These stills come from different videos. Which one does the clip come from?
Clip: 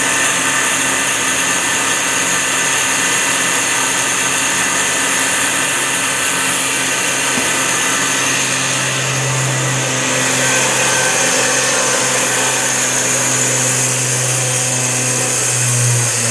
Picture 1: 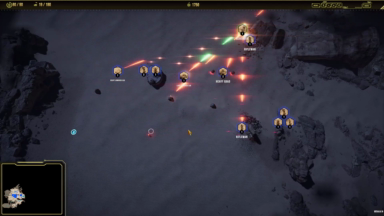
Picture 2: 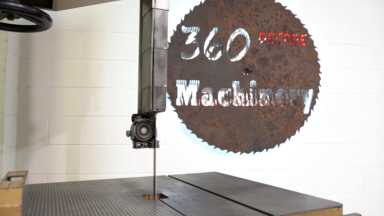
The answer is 2